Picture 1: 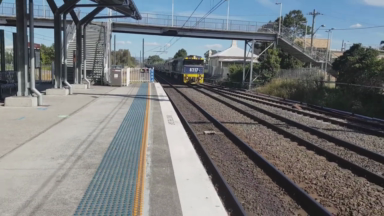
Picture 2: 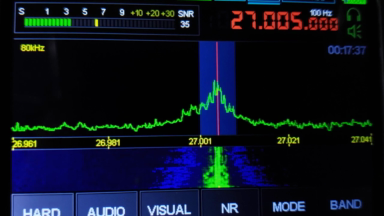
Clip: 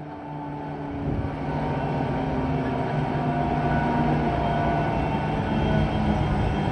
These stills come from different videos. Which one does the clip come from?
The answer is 1